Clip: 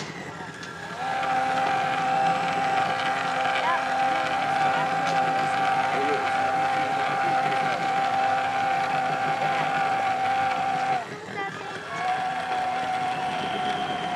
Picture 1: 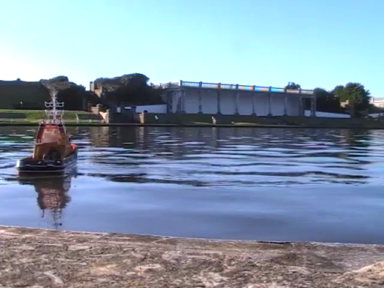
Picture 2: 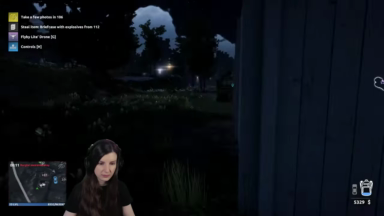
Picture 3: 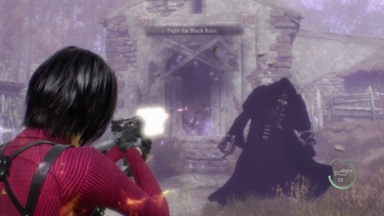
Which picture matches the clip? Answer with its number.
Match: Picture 1